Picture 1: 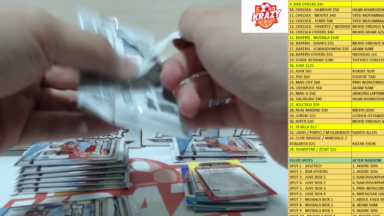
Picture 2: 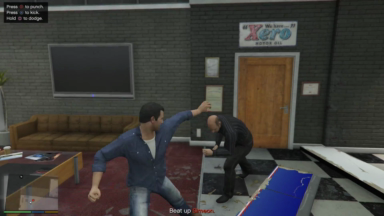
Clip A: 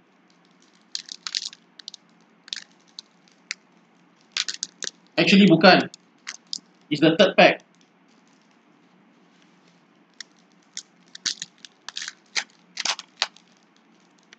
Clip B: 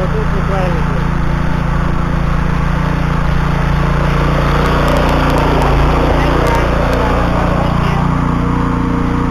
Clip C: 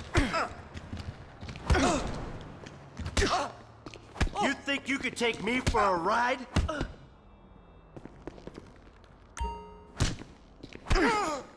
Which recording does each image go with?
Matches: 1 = A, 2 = C